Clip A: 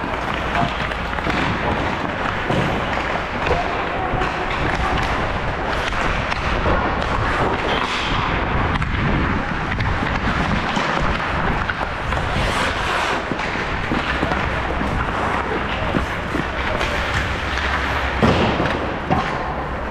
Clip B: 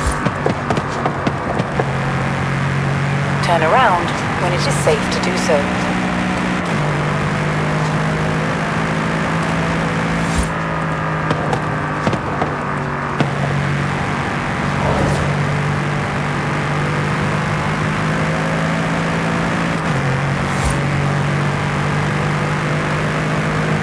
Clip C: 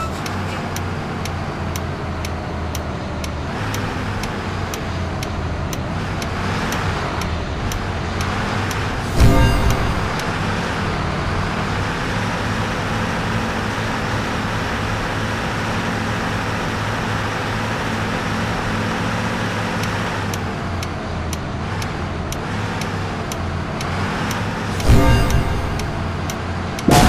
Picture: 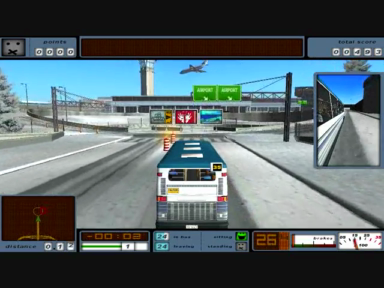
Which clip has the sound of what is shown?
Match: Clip C